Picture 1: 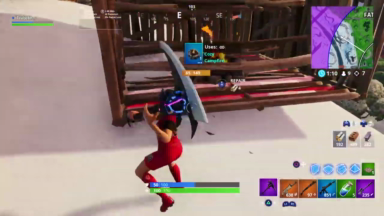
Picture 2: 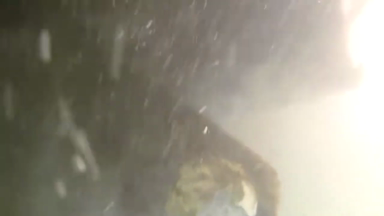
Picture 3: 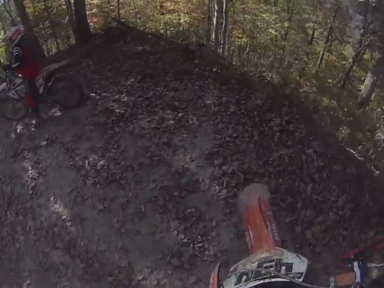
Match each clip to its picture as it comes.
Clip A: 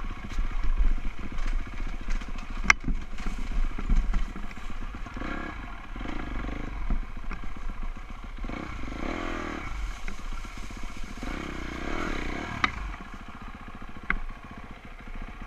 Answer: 3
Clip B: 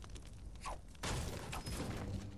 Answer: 1